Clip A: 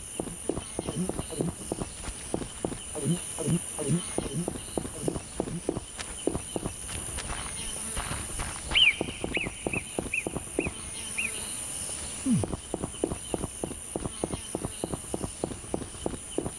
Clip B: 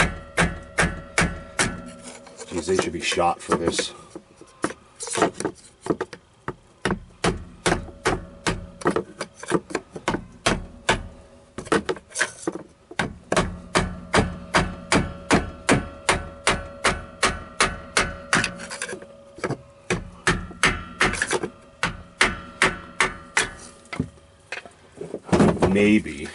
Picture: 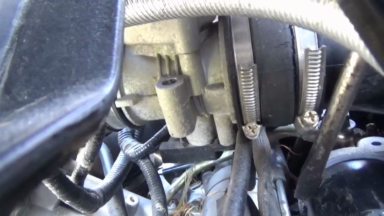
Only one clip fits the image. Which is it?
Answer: B